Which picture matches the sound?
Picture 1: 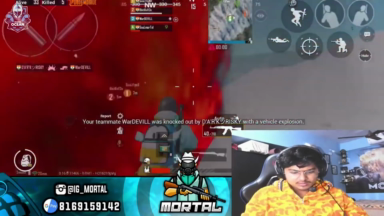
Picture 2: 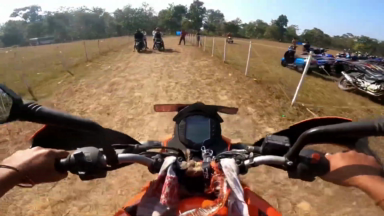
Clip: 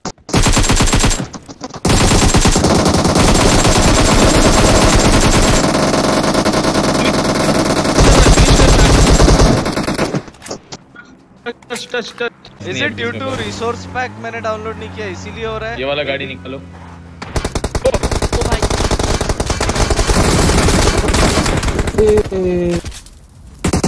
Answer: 1